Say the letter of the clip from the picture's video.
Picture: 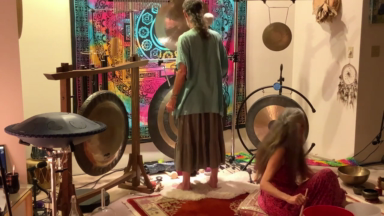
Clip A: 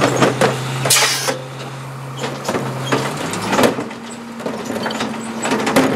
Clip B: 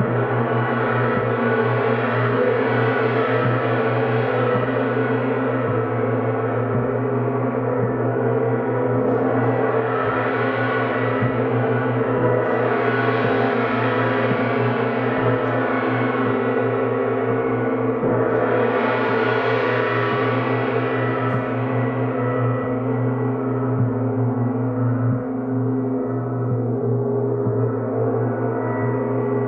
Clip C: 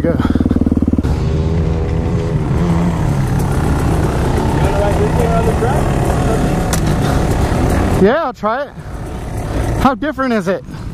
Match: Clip B